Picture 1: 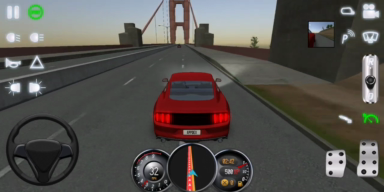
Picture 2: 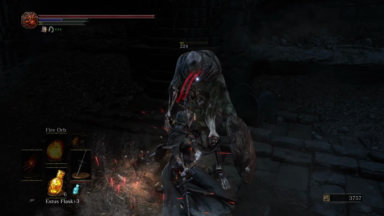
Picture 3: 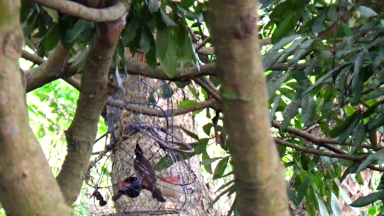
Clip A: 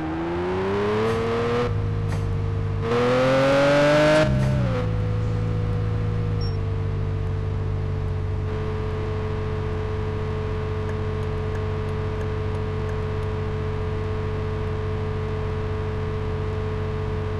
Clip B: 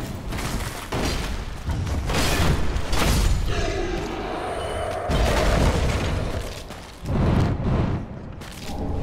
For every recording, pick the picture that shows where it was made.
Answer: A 1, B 2